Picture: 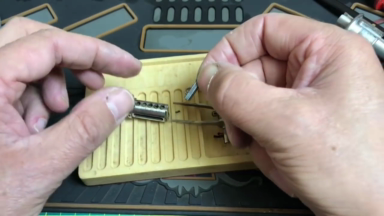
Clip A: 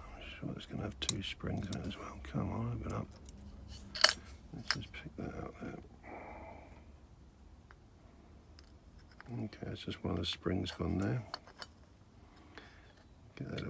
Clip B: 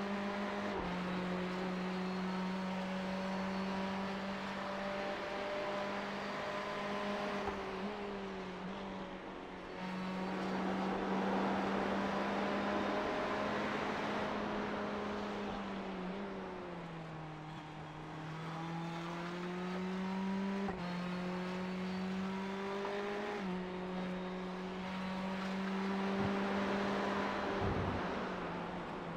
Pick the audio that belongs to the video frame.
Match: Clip A